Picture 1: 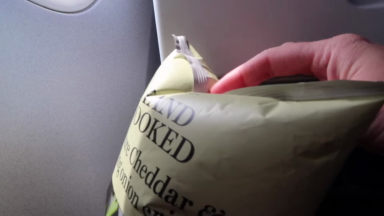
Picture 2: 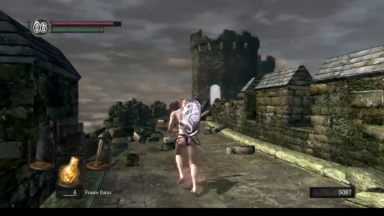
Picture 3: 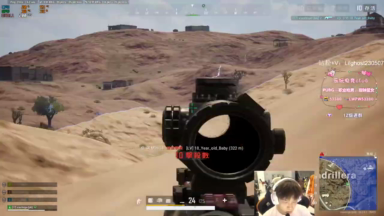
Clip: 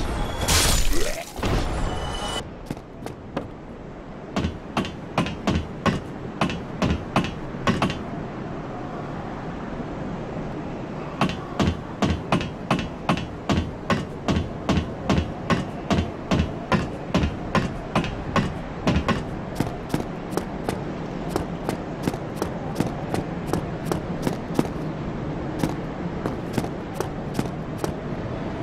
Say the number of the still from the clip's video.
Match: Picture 2